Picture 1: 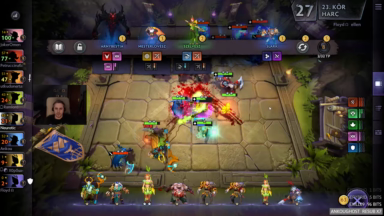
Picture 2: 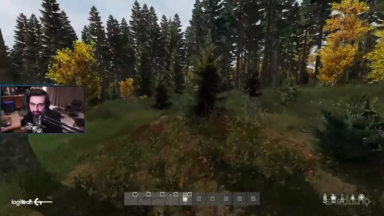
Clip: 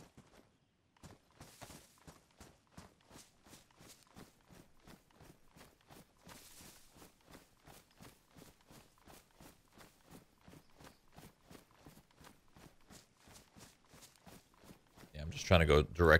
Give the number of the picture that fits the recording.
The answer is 2